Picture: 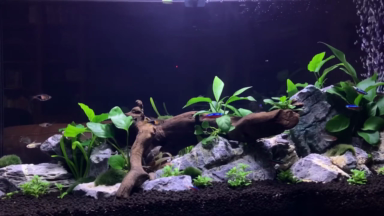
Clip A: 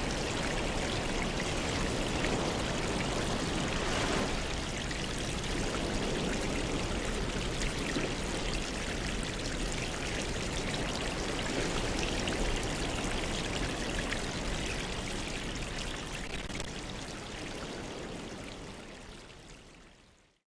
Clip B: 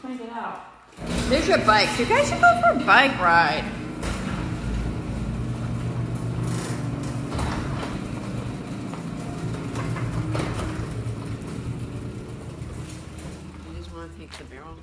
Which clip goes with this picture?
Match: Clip A